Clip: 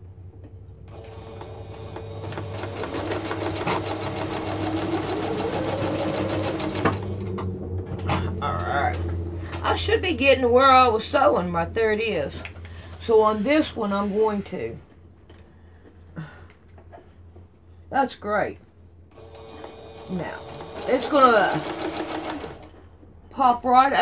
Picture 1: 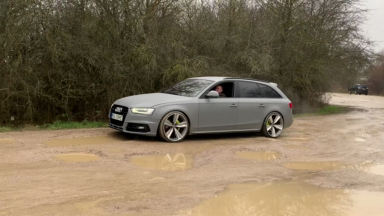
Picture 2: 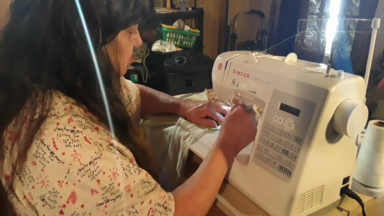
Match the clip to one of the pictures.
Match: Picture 2